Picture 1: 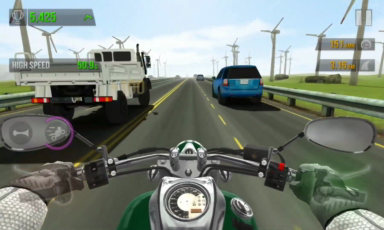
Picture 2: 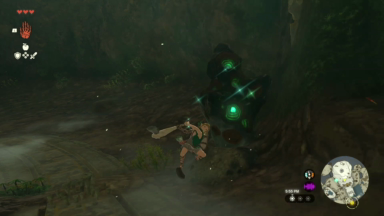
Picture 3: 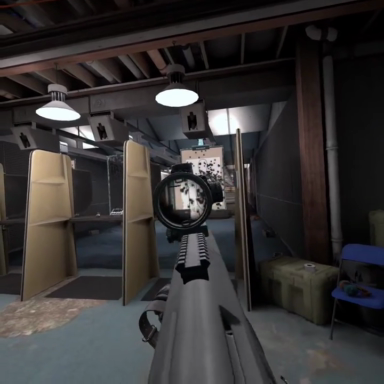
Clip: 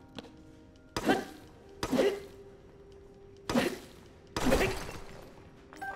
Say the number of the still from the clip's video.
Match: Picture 2